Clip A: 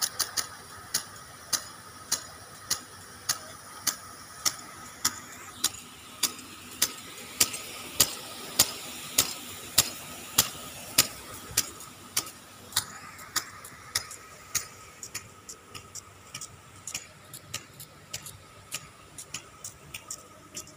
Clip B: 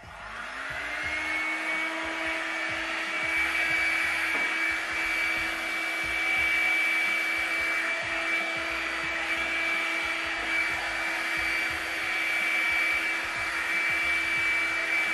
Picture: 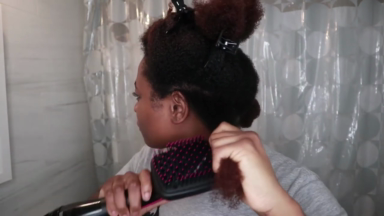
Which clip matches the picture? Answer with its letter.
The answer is B